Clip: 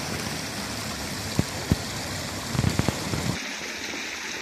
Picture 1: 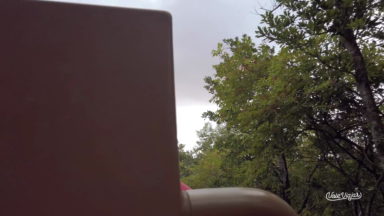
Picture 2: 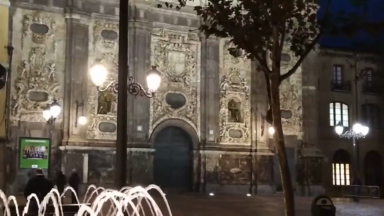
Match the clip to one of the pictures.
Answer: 2